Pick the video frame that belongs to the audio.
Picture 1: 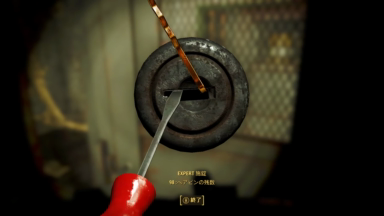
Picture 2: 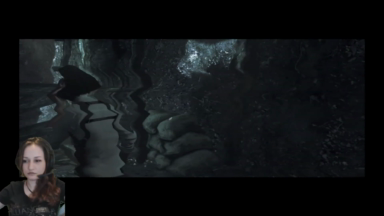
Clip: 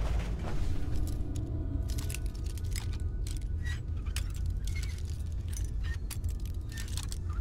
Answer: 1